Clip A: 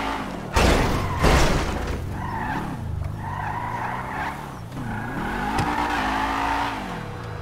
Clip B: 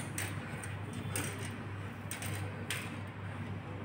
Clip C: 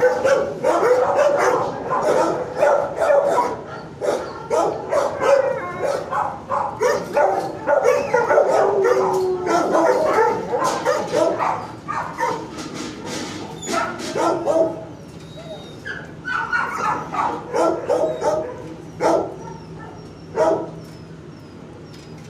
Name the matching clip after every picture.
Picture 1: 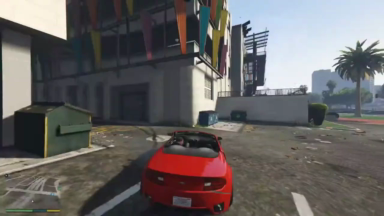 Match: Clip A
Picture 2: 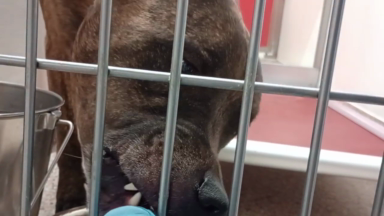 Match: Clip C